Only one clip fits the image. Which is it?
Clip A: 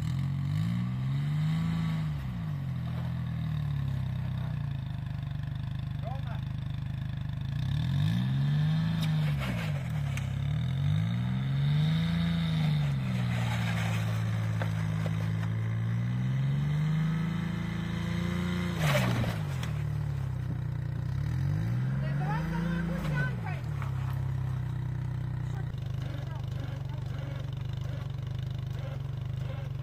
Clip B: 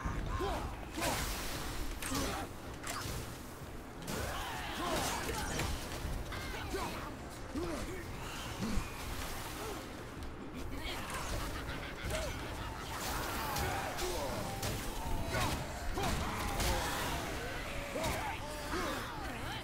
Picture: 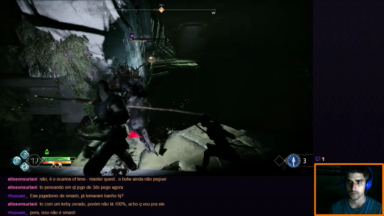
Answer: B